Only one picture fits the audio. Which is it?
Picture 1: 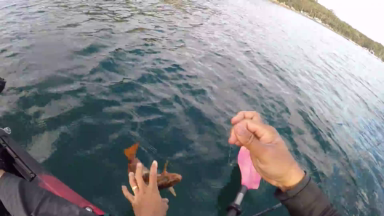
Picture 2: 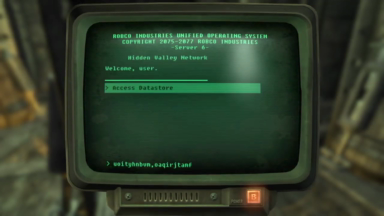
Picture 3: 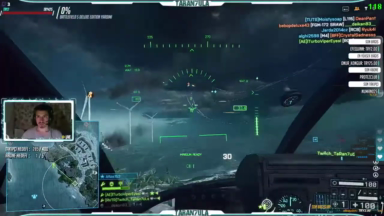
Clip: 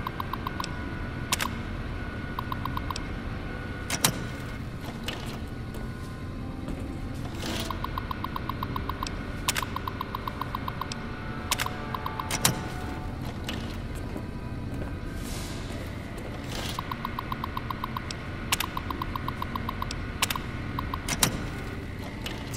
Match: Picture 2